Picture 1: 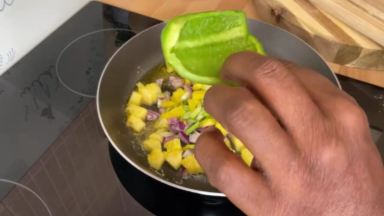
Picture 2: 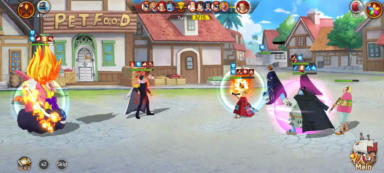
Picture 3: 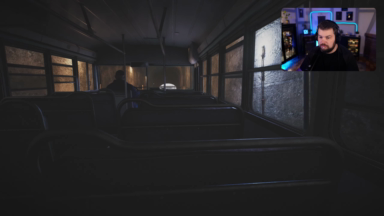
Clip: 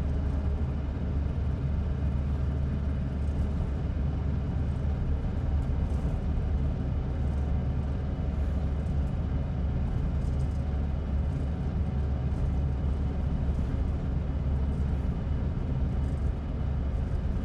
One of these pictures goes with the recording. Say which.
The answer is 3